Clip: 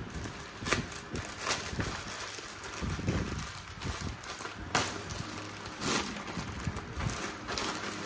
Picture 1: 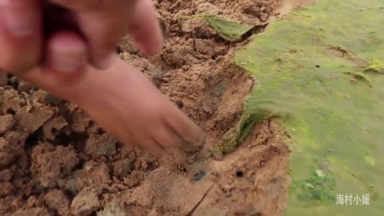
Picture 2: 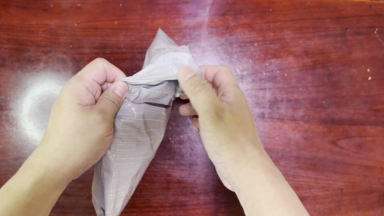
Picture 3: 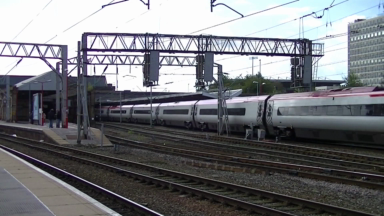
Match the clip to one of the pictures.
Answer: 2